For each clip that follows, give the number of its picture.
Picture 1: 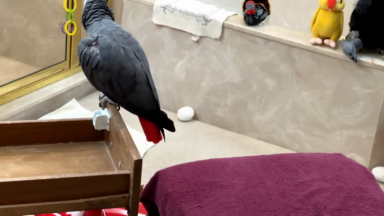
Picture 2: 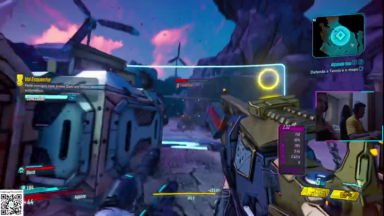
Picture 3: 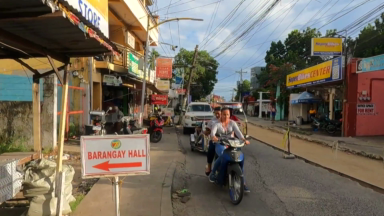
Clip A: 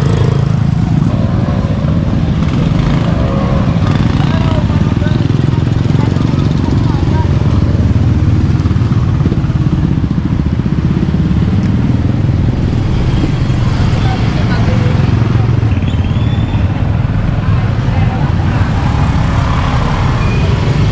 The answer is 3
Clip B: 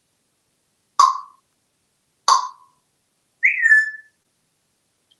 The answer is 1